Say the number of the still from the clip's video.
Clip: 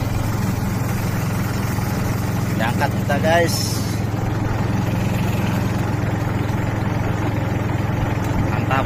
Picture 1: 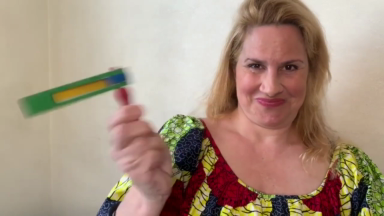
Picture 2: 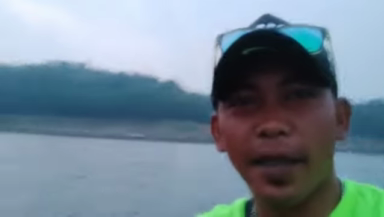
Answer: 2